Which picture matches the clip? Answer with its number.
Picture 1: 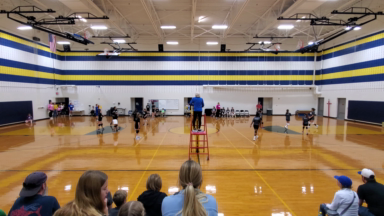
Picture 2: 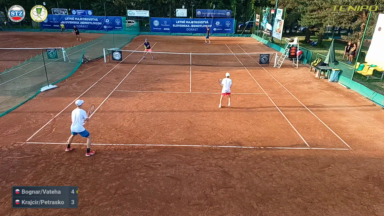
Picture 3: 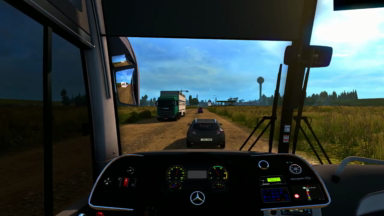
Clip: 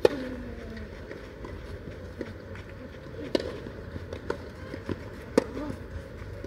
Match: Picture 2